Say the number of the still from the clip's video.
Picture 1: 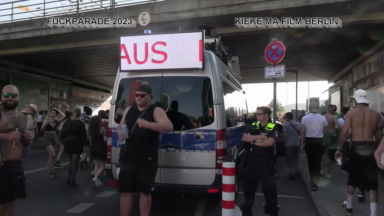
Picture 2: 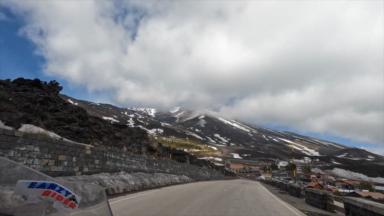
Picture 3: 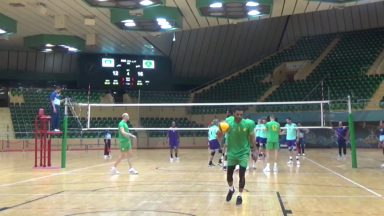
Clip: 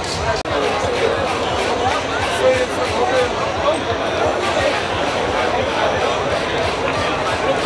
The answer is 1